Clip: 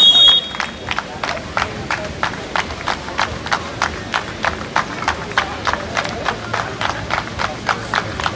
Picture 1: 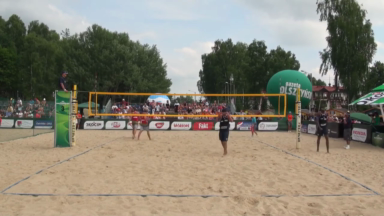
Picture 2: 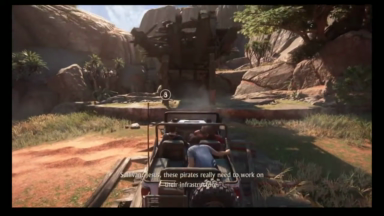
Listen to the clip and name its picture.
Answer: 1